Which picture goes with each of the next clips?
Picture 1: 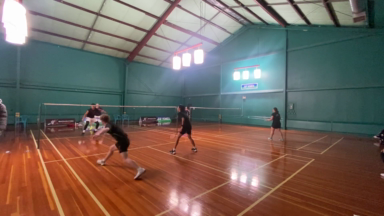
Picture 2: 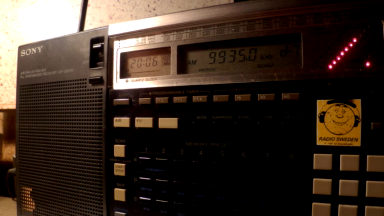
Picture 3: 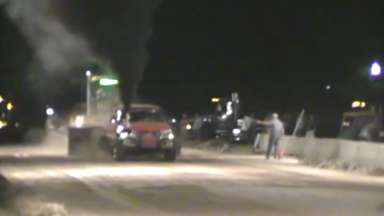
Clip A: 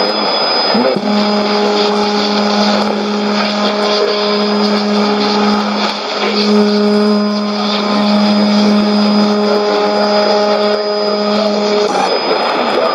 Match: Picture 2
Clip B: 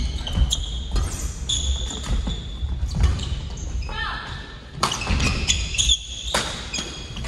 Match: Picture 1